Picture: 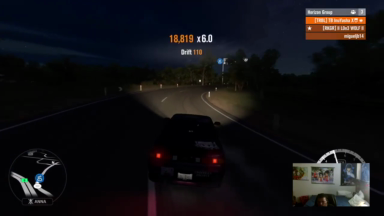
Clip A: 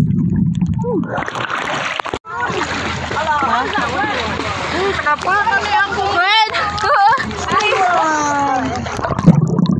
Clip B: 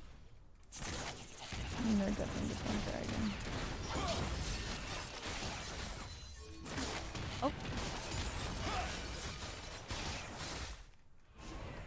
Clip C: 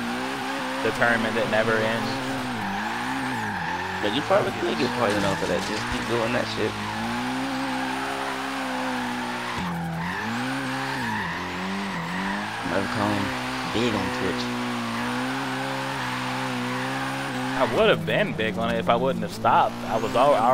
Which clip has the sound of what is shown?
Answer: C